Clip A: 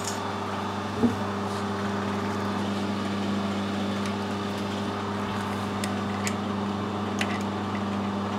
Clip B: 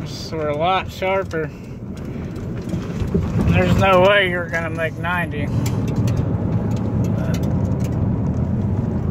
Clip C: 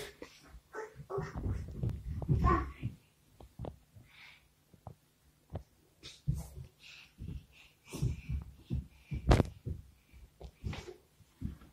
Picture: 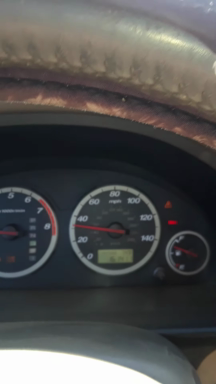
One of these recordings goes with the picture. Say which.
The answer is B